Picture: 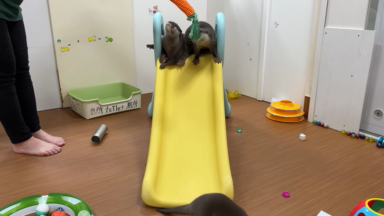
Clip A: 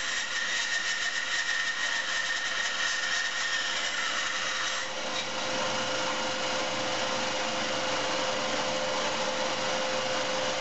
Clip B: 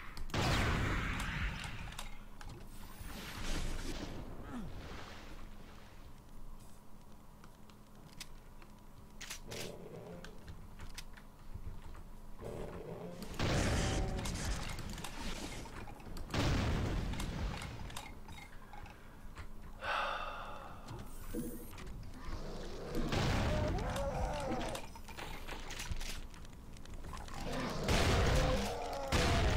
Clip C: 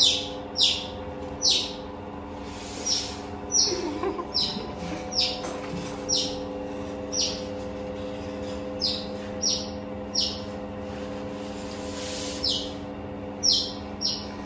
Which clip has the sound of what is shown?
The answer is C